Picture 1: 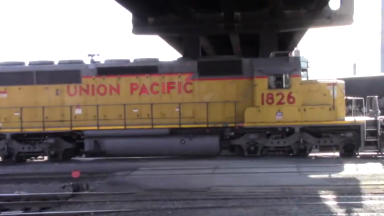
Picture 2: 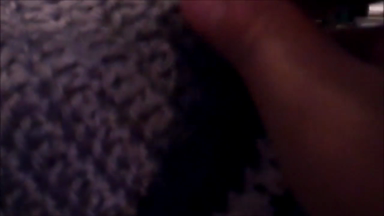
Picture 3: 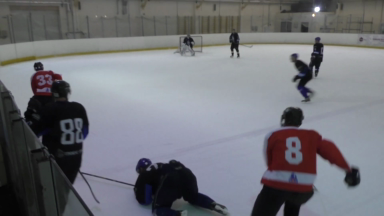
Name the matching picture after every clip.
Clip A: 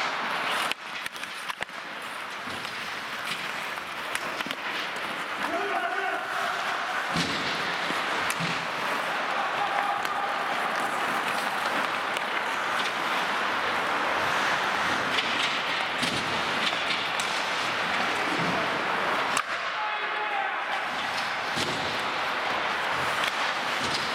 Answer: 3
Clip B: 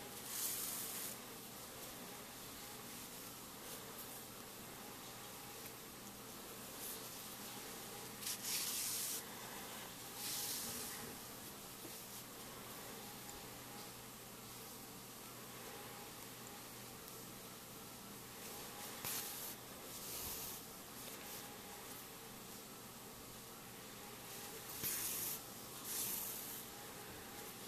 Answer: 2